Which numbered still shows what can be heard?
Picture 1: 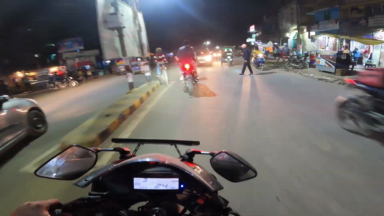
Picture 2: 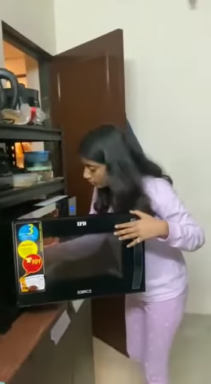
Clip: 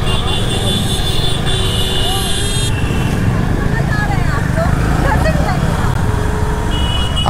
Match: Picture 1